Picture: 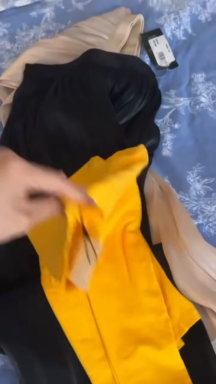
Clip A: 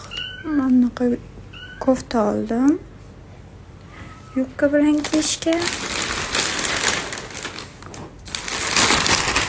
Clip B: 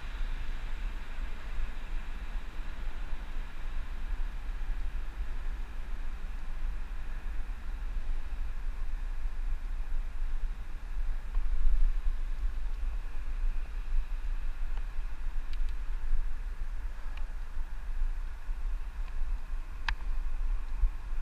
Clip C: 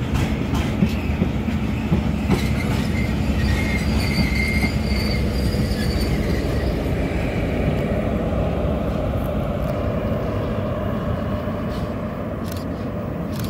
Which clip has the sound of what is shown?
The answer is A